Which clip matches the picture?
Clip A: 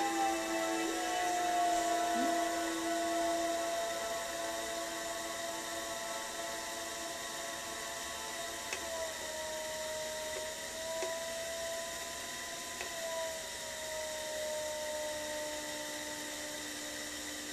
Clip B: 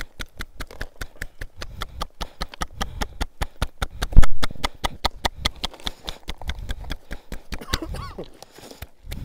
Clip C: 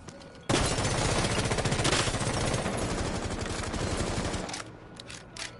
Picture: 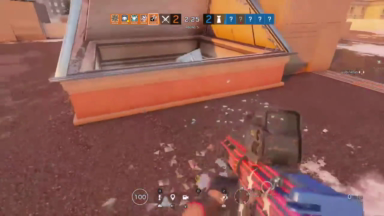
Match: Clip C